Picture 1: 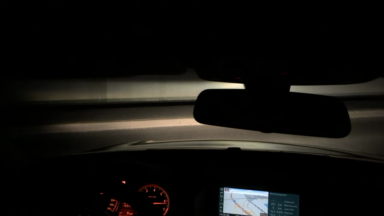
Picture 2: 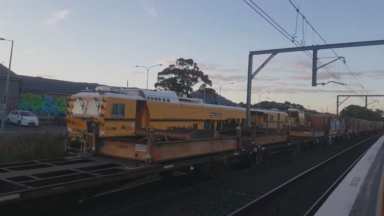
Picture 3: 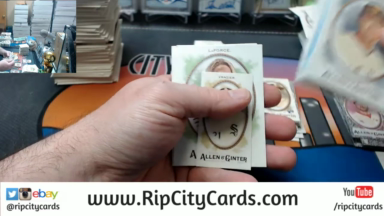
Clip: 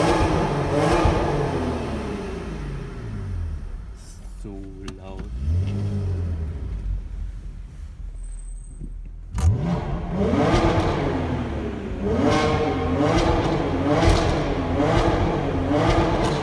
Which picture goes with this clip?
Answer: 1